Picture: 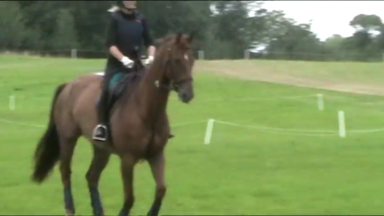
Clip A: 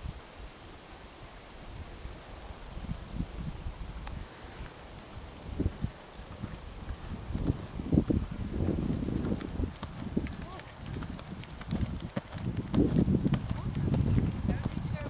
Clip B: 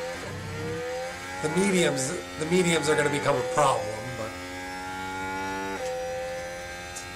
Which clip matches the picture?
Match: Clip A